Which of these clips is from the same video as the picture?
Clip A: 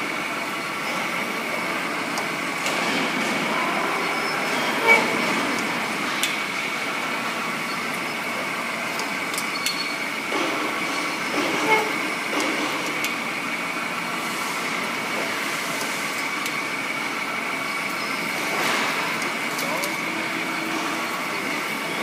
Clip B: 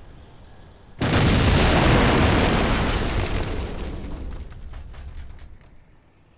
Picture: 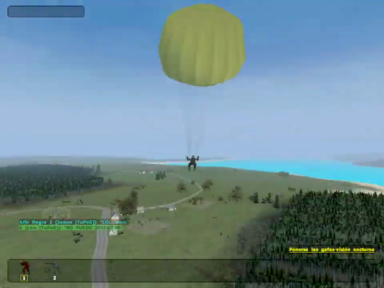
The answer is B